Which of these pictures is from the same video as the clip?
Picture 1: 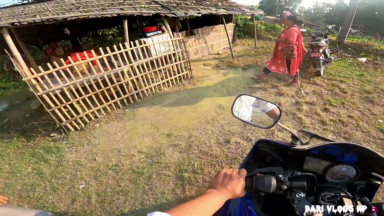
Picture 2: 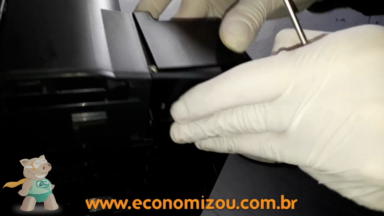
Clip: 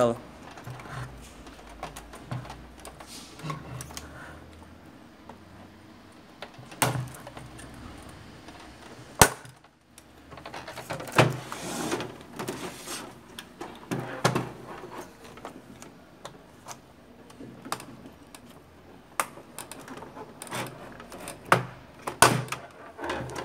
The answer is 2